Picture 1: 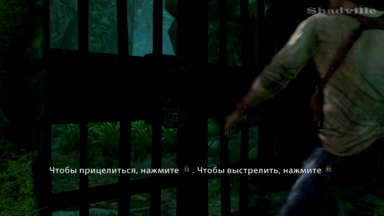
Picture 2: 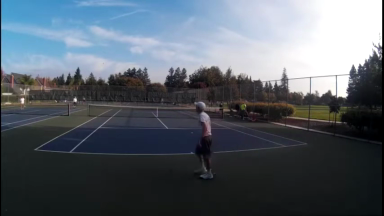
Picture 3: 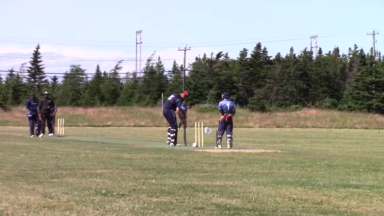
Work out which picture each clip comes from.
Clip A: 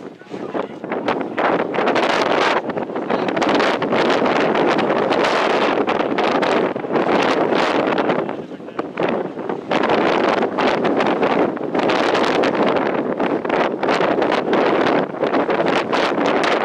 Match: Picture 3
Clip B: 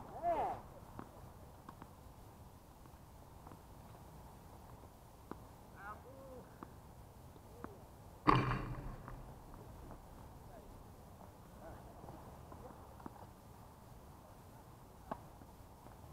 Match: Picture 2